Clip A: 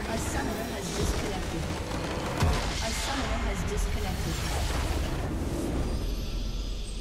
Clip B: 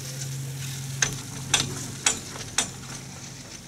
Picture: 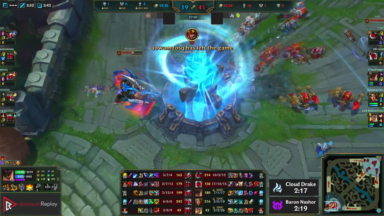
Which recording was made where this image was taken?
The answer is A